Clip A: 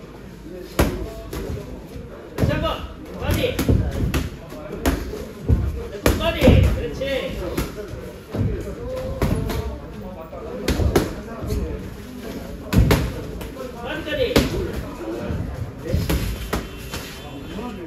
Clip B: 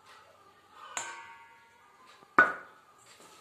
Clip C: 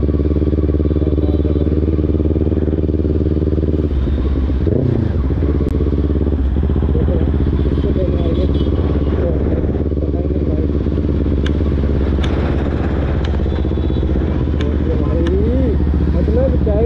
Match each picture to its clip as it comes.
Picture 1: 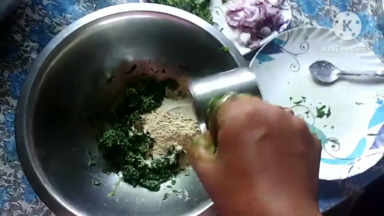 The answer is B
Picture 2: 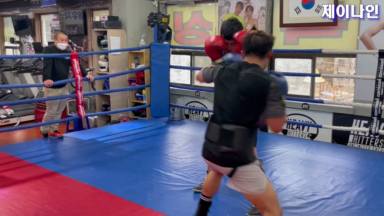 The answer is A